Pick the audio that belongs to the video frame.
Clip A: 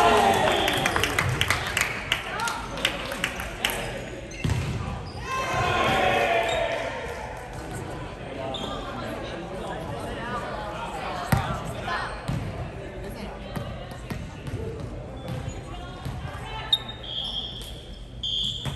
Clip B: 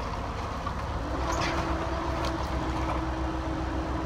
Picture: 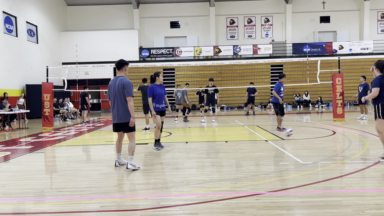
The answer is A